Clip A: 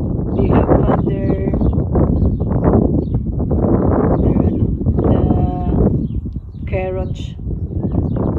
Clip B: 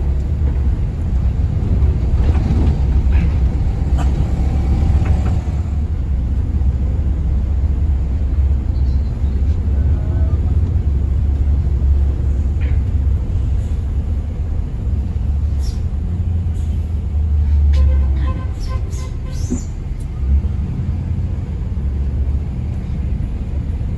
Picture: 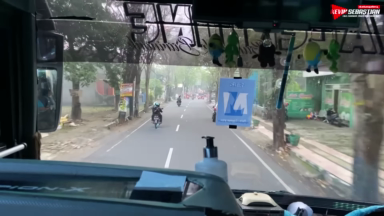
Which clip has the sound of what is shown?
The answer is B